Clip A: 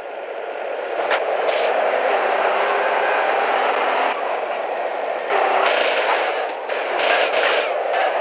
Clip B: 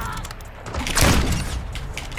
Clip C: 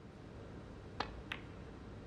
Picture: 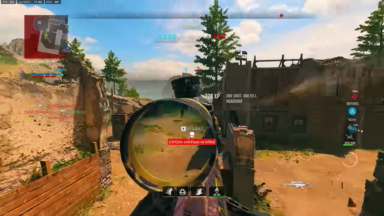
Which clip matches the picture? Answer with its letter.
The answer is B